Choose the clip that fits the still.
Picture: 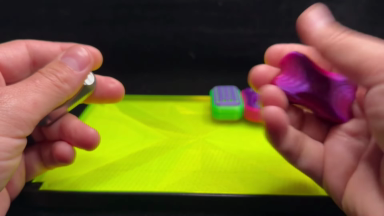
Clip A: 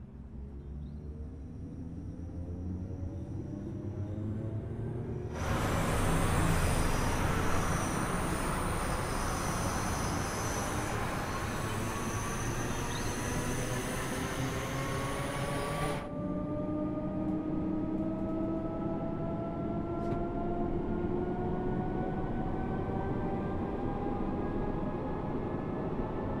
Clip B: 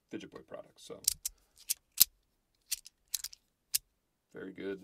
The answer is B